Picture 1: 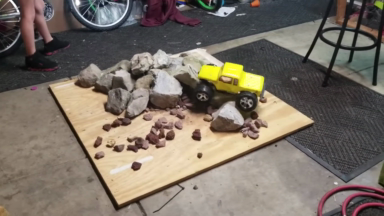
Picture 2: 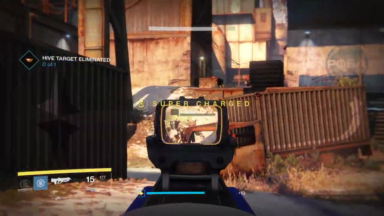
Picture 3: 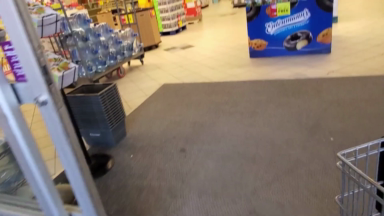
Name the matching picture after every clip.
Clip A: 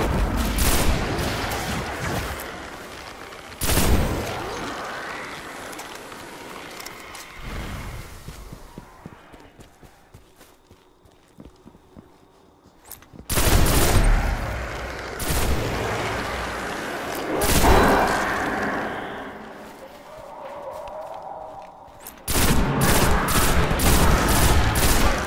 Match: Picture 2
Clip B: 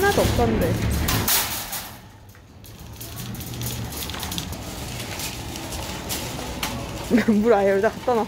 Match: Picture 3